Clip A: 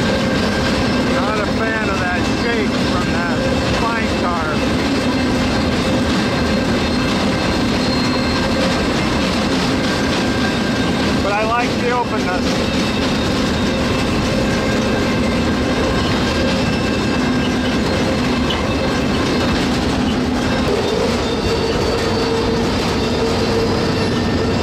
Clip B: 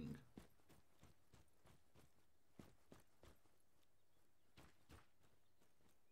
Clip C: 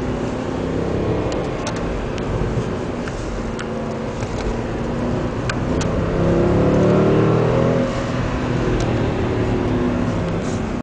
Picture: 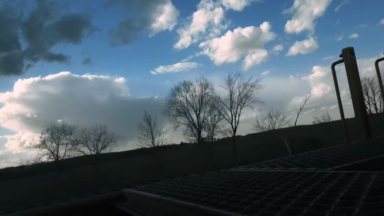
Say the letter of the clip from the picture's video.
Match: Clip A